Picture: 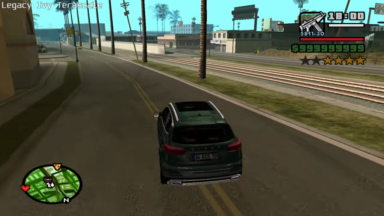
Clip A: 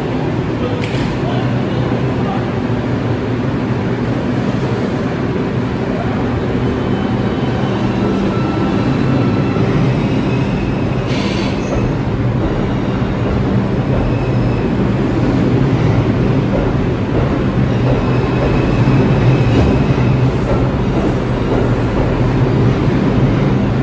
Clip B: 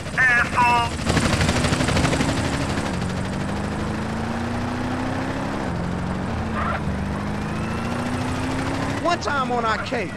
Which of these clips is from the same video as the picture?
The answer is B